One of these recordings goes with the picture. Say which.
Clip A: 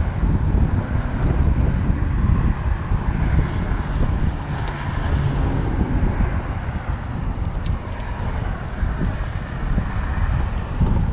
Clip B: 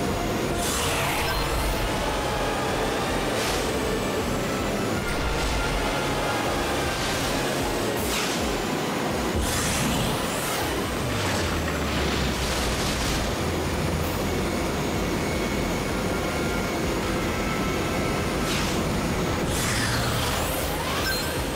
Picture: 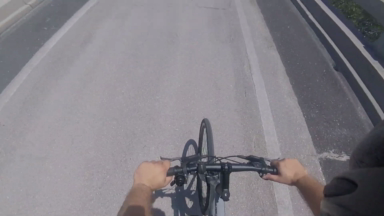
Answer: A